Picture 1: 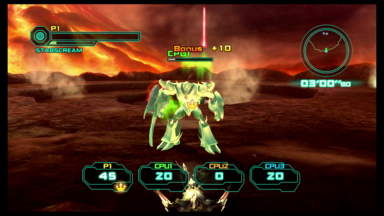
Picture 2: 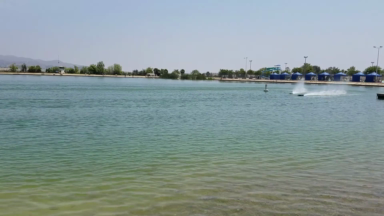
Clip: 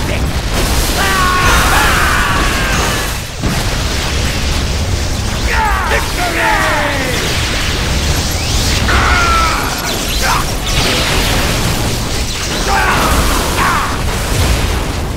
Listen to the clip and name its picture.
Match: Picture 1